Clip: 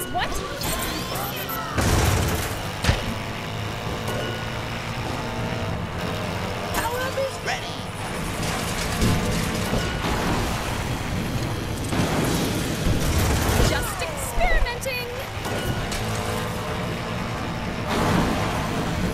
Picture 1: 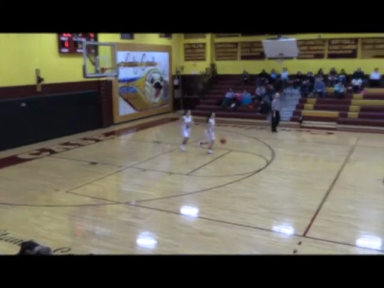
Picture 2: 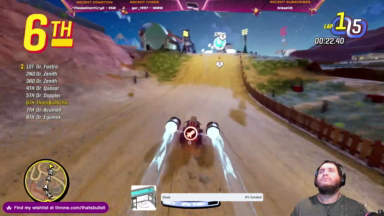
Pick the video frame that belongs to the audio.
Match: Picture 2